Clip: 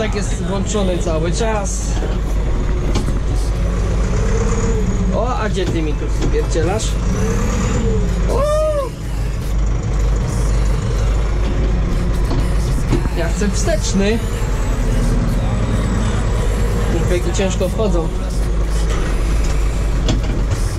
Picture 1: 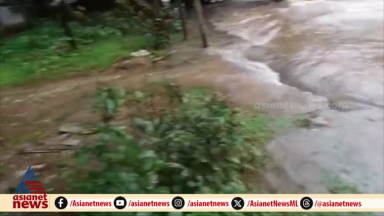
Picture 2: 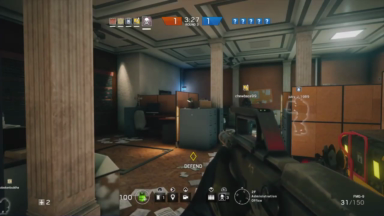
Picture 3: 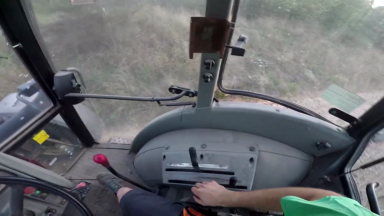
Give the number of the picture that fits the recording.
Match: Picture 3